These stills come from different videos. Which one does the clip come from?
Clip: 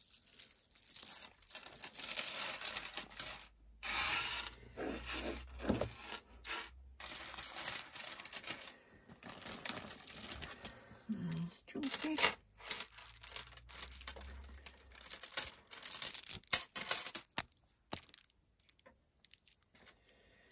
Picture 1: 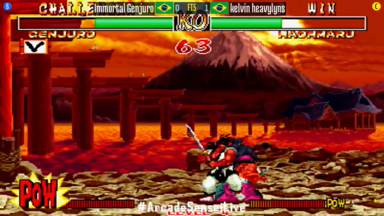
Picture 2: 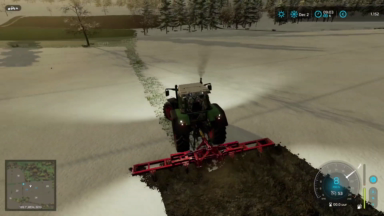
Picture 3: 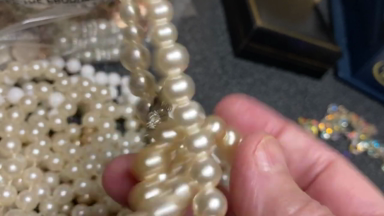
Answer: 3